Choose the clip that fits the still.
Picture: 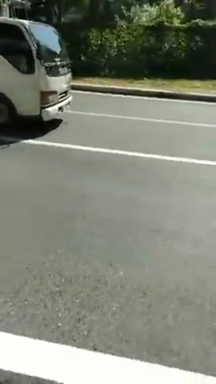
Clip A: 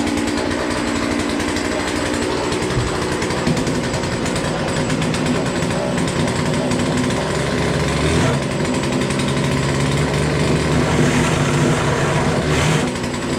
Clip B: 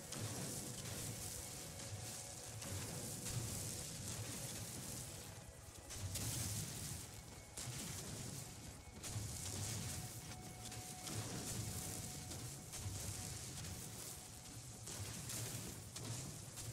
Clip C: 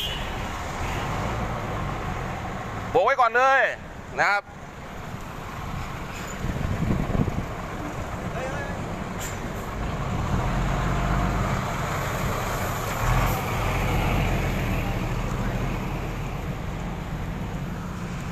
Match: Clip C